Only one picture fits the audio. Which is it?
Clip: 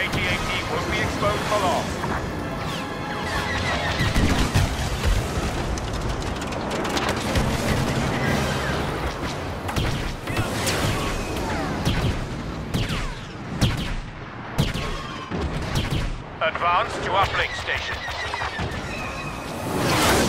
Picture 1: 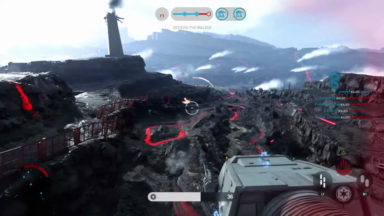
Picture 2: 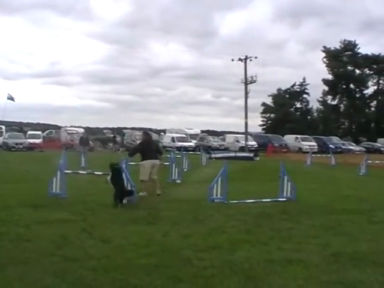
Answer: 1